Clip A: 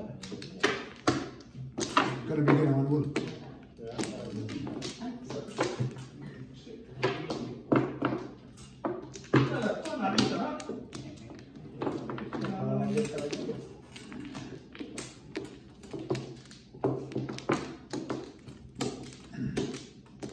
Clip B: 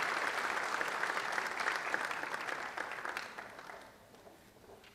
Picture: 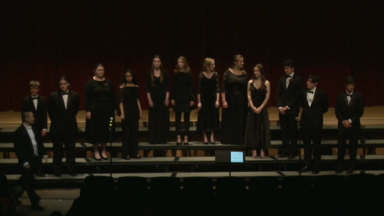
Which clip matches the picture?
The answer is B